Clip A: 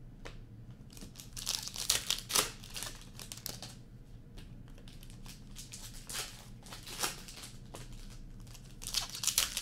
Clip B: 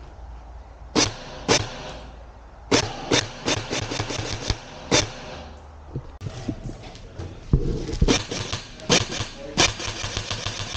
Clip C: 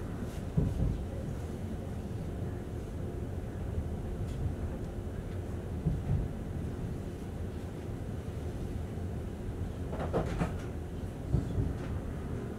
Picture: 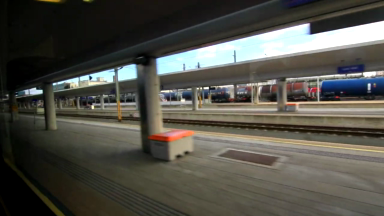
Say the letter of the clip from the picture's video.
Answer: C